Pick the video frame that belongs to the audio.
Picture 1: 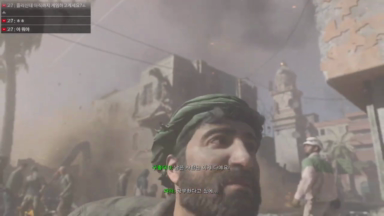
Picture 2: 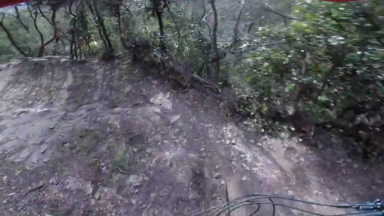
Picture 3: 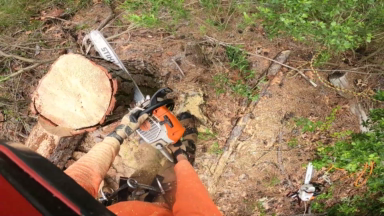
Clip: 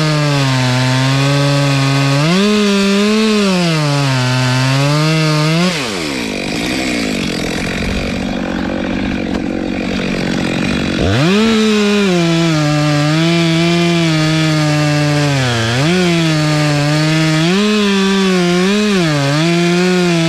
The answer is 3